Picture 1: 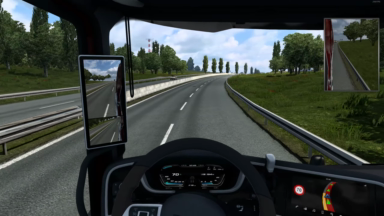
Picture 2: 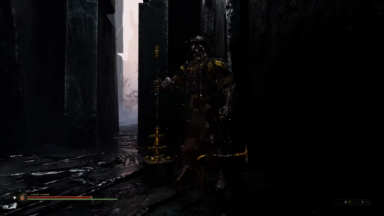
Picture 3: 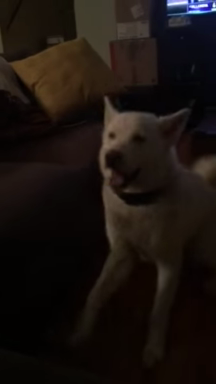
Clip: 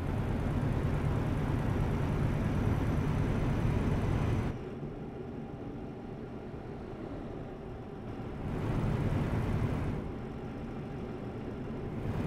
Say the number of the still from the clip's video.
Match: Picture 1